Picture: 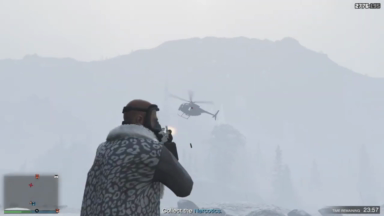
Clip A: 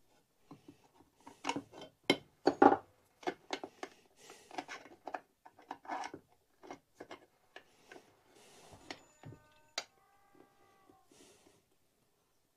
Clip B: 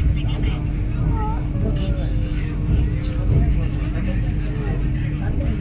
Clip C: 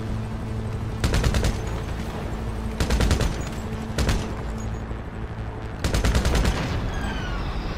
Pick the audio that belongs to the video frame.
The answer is C